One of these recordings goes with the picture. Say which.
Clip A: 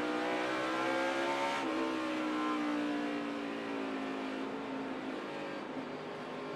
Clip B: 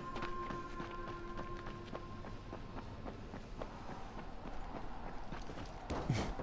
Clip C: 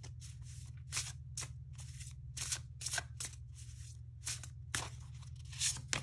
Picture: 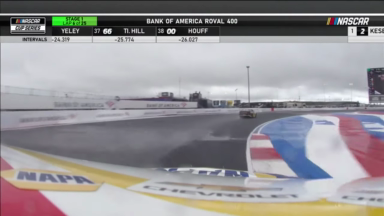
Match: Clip A